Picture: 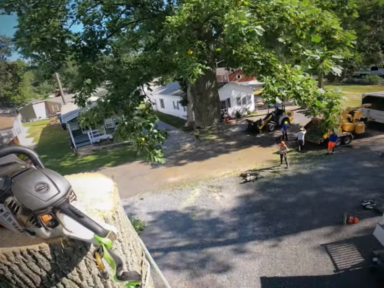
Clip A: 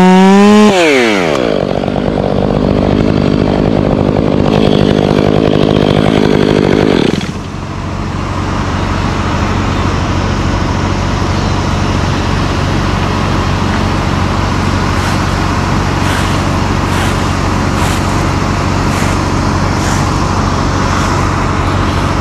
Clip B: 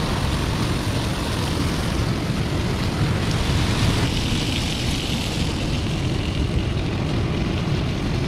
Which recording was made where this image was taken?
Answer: A